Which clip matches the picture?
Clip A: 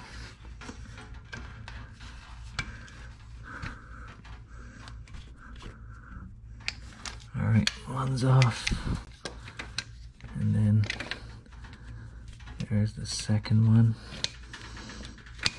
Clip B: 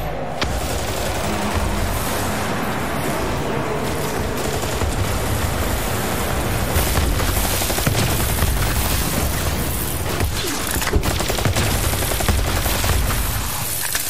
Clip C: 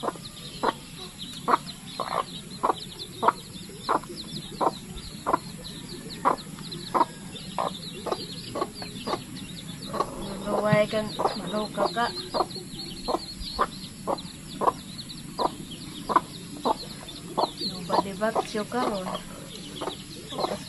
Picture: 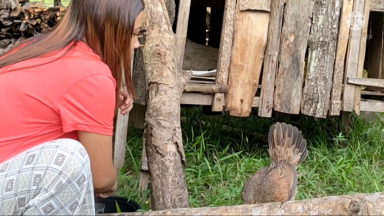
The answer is C